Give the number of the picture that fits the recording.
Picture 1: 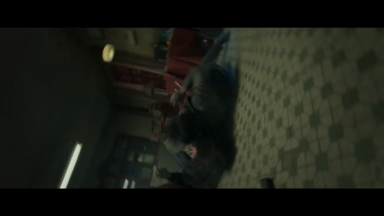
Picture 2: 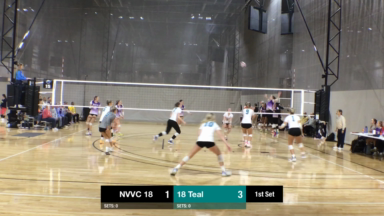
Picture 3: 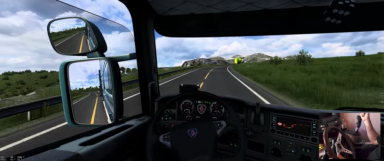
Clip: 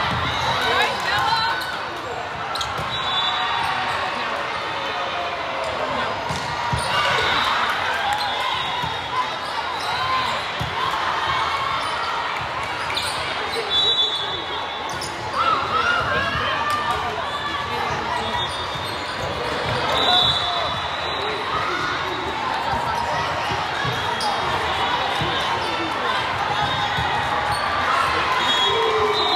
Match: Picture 2